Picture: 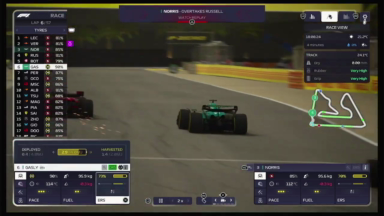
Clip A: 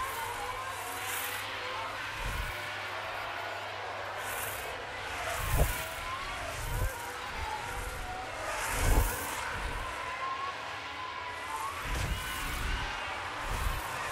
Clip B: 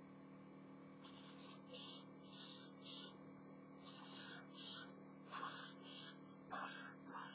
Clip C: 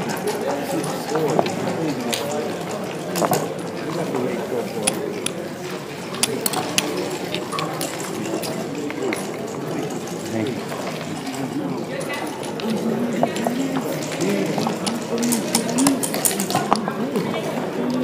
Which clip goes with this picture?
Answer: A